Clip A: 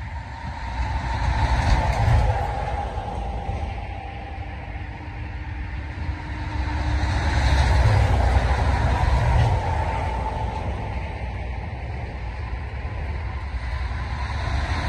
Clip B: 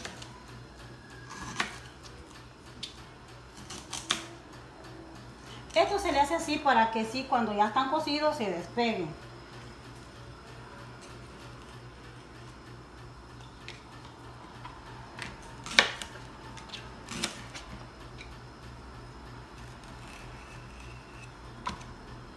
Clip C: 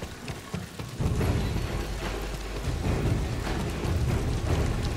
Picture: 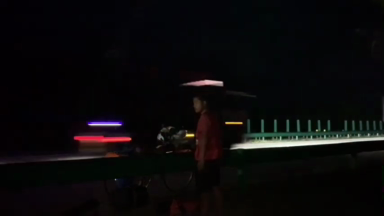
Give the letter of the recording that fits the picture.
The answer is A